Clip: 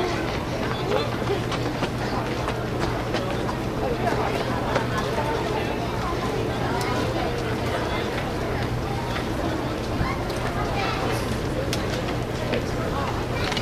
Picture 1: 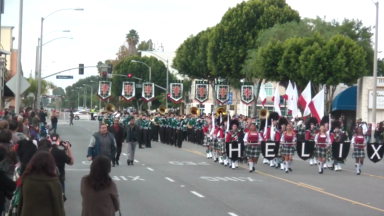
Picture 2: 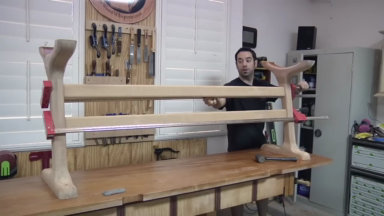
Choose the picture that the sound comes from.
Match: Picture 1